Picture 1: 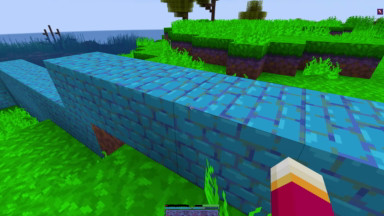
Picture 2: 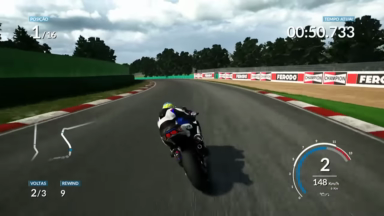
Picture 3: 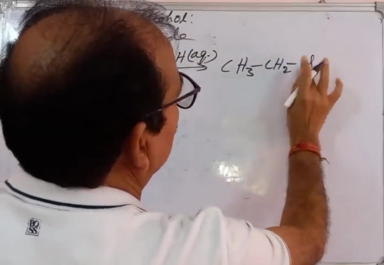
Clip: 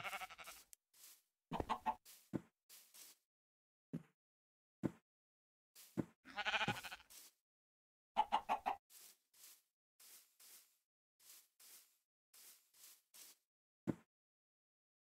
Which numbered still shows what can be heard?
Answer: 1